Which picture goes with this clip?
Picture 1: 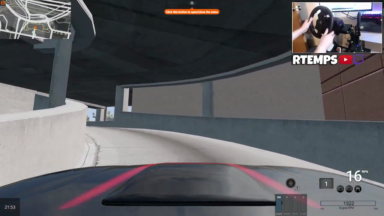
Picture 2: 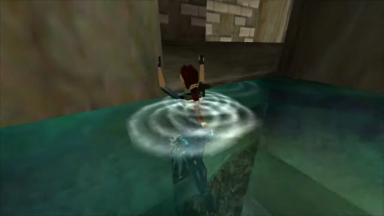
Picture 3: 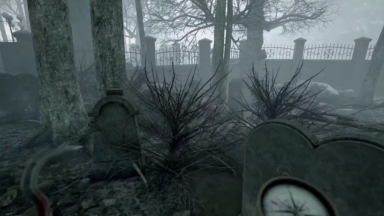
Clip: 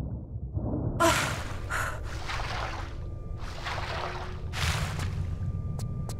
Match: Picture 2